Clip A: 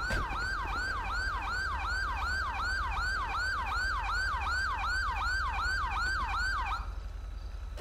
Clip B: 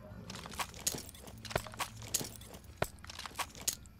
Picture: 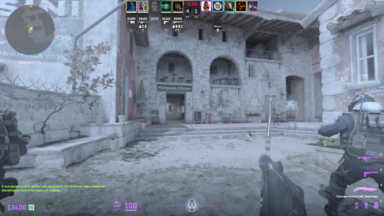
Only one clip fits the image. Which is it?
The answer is B